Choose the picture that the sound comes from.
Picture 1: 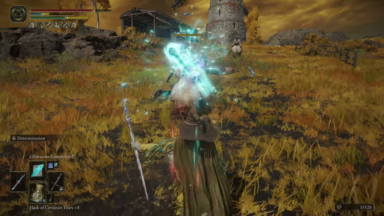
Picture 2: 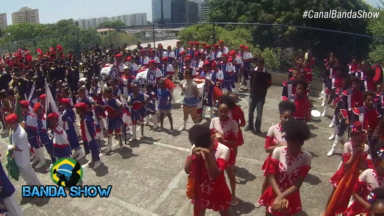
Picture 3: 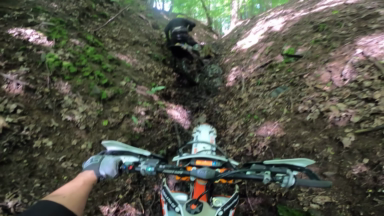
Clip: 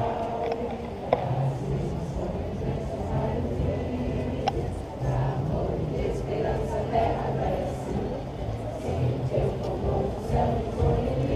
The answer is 2